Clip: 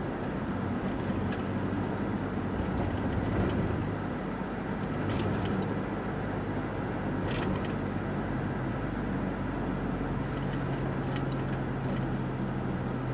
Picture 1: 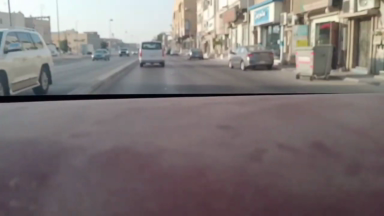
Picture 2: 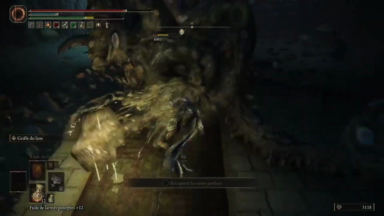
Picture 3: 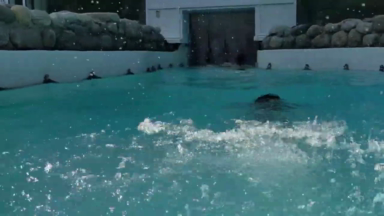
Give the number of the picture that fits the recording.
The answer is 1